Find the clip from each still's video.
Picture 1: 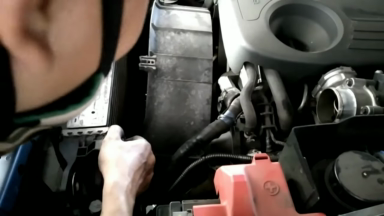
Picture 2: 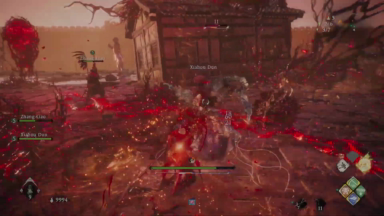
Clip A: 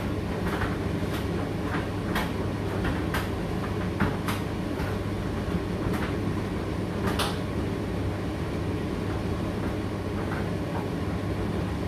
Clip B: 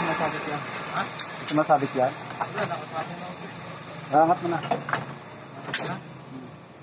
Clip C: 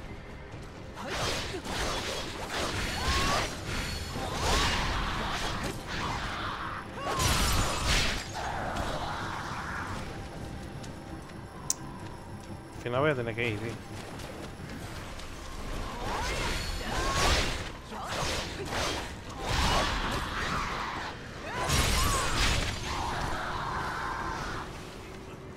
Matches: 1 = B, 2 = C